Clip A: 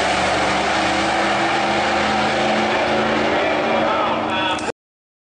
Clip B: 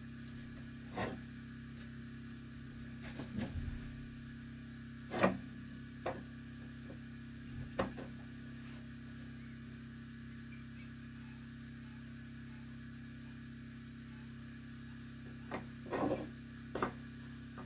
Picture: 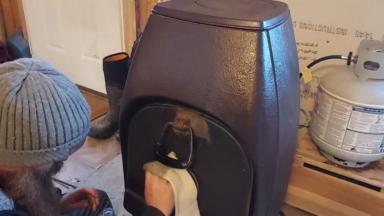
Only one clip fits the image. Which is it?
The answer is B